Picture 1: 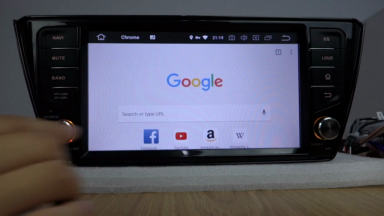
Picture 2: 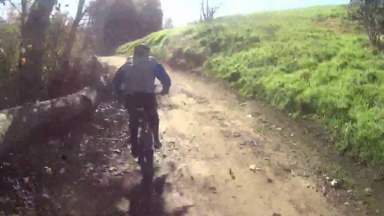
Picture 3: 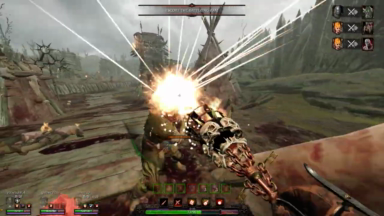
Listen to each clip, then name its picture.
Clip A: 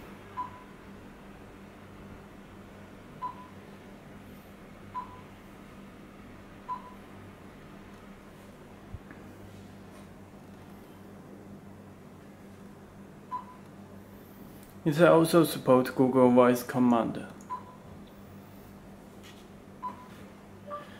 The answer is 1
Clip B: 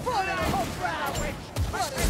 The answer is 3